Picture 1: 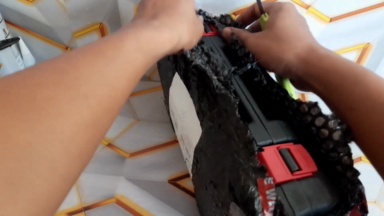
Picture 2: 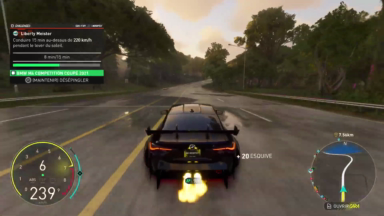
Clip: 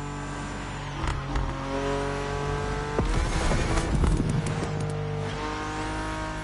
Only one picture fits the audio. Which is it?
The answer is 2